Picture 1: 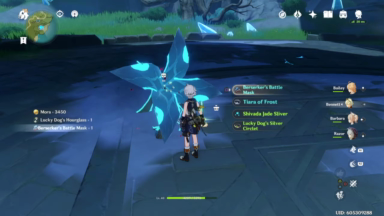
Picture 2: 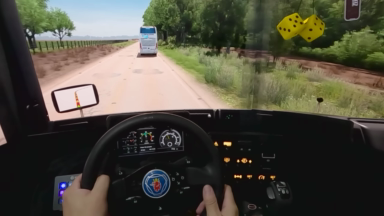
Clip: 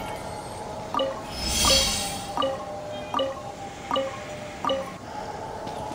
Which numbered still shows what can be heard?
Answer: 1